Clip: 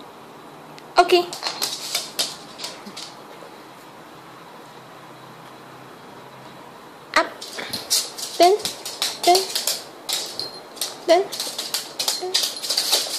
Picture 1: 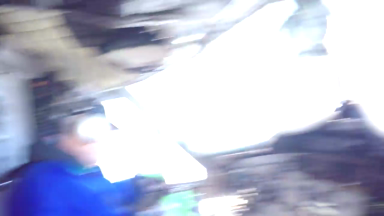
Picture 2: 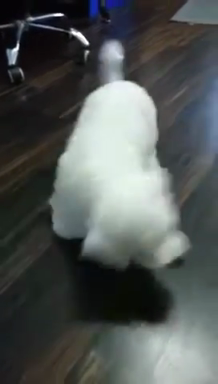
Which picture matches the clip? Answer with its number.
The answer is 2